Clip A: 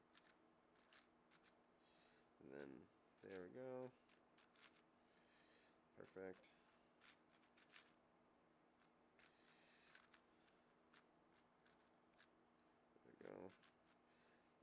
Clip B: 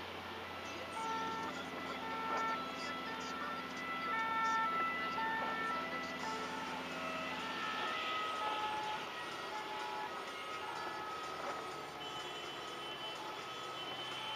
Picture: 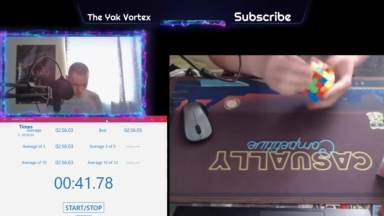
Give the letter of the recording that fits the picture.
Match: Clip A